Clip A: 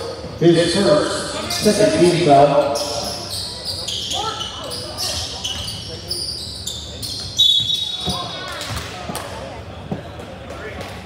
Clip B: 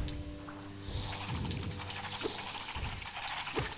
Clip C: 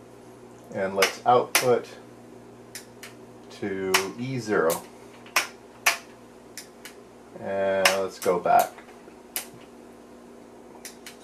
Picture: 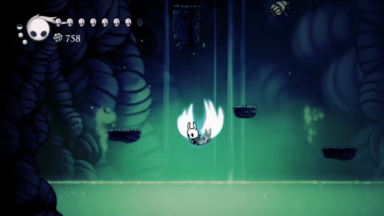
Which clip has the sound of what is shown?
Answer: B